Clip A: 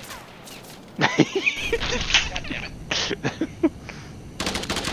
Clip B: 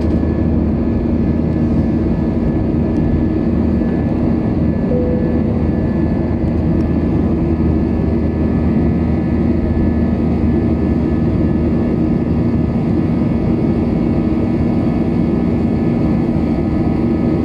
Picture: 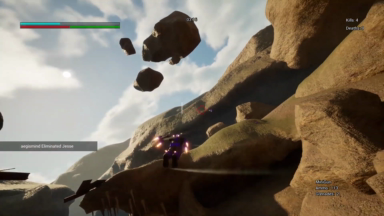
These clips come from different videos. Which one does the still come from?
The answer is A